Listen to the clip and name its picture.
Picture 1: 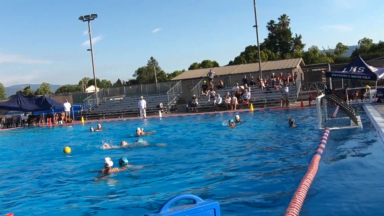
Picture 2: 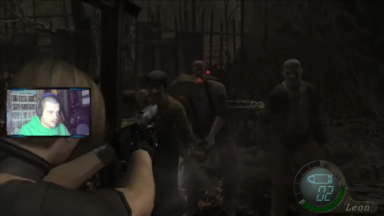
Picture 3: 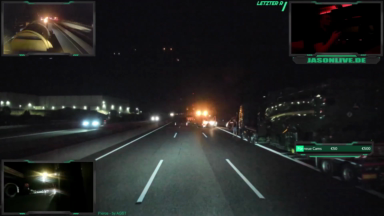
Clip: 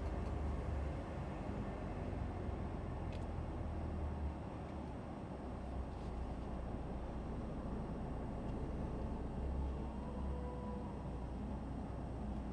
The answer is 3